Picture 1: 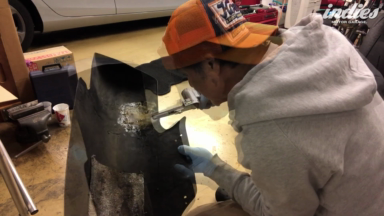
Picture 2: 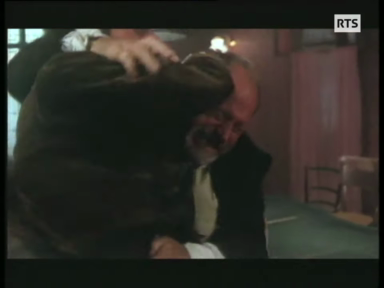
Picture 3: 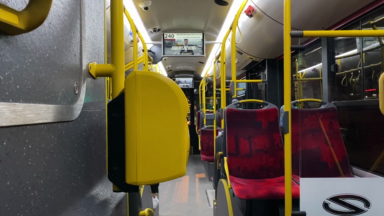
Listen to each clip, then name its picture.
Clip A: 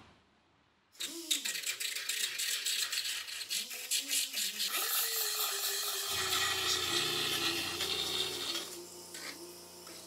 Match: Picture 1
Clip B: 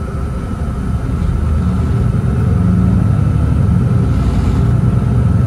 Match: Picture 3